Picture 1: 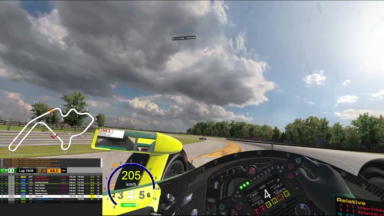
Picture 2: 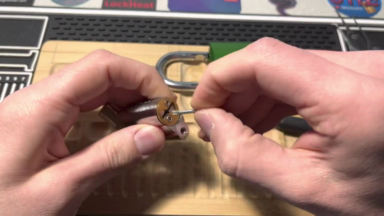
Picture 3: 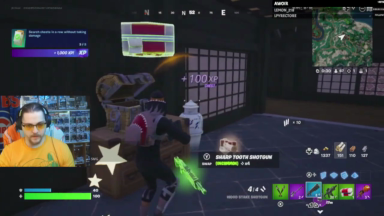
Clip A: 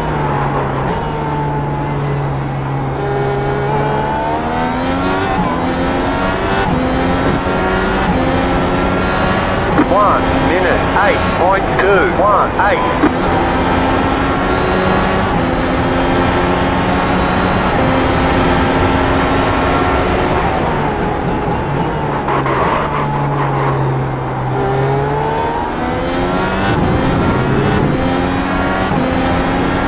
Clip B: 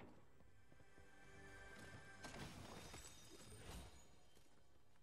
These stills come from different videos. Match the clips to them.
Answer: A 1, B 3